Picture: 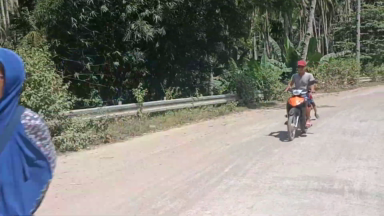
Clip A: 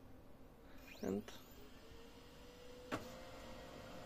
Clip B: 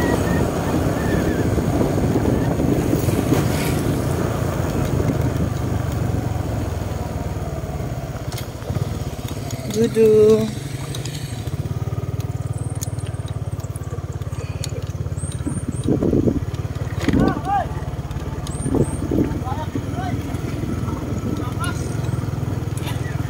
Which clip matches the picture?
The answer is B